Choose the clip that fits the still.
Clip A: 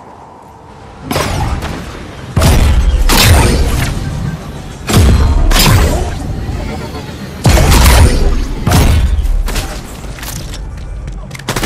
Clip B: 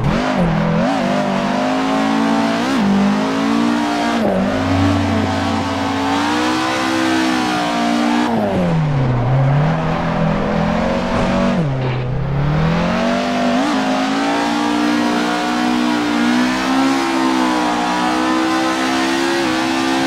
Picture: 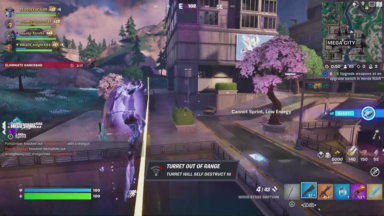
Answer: A